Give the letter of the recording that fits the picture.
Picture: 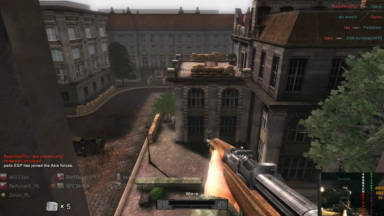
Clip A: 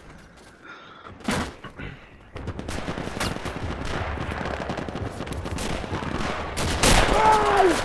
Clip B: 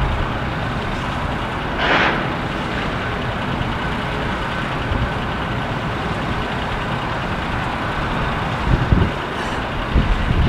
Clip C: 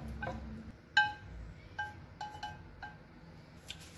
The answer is A